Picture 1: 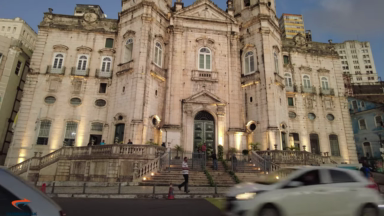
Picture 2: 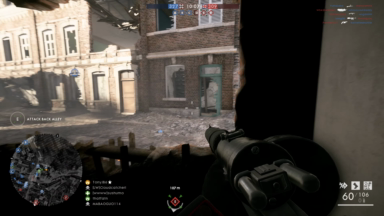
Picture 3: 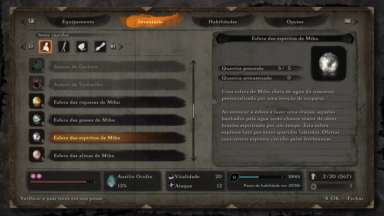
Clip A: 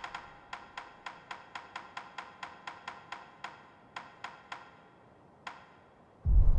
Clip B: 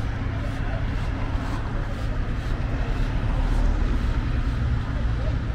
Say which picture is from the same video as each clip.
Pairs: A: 3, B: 1